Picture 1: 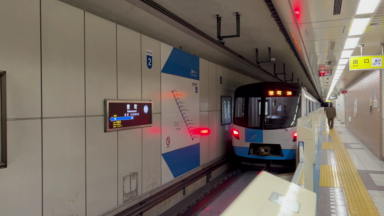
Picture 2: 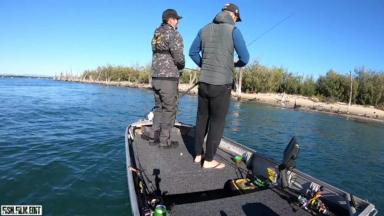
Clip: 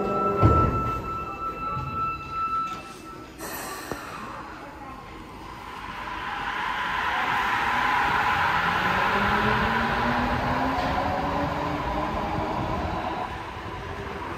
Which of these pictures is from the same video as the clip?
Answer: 1